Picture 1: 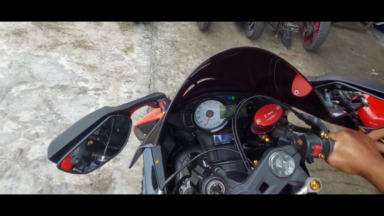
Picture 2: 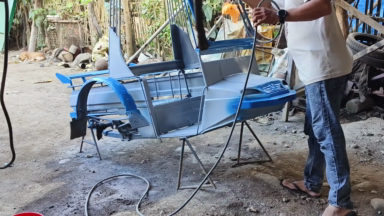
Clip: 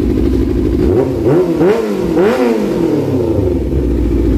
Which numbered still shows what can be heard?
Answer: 1